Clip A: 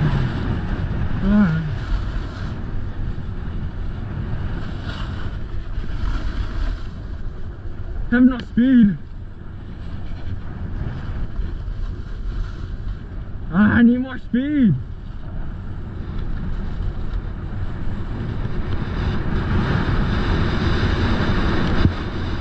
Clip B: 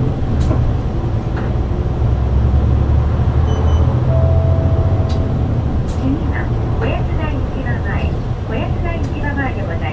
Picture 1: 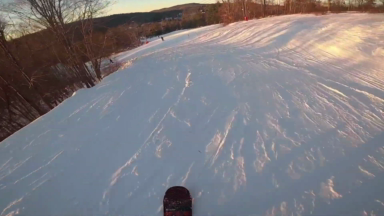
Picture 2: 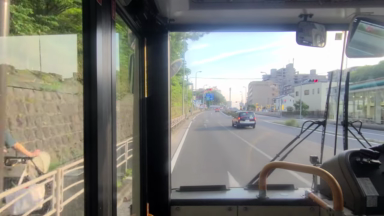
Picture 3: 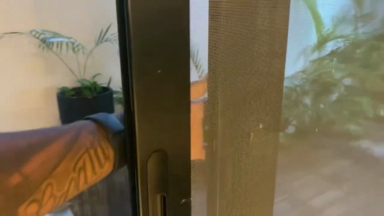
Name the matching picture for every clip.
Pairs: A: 1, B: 2